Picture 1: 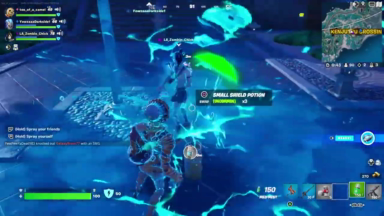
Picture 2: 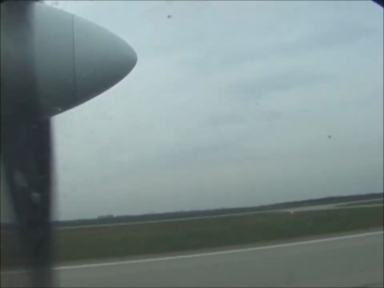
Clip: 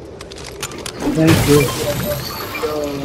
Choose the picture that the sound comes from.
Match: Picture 1